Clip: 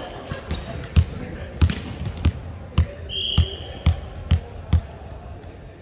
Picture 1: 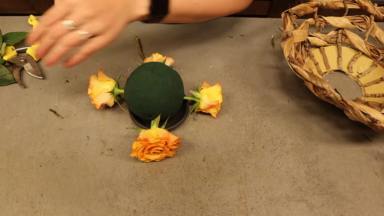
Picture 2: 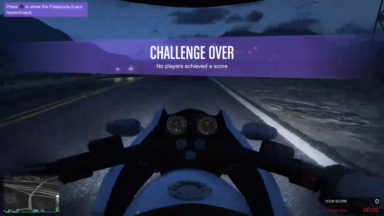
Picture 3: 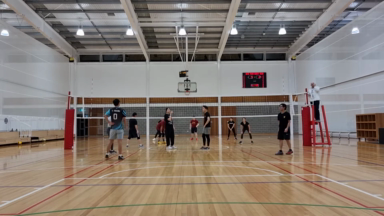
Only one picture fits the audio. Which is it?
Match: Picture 3